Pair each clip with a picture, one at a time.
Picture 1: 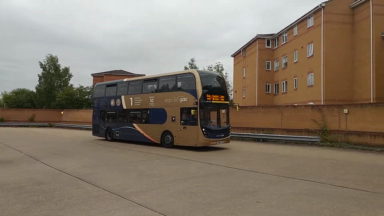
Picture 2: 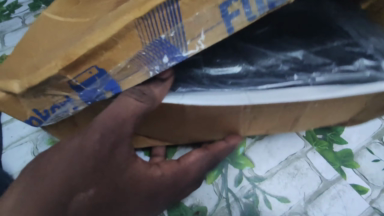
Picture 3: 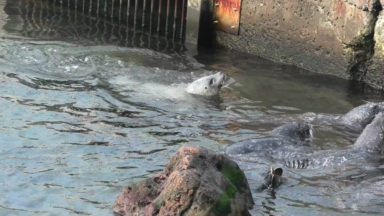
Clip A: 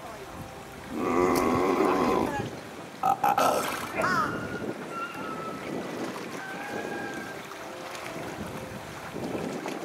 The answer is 3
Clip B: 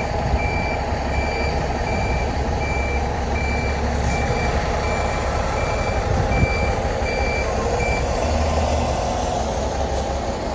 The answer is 1